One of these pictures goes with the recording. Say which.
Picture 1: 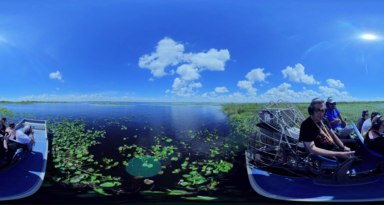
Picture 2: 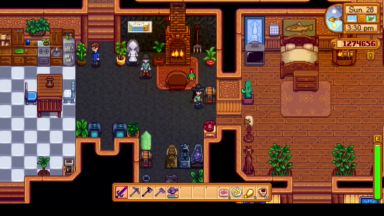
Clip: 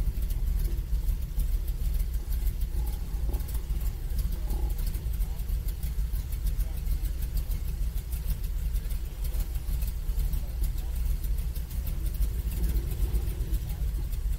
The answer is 1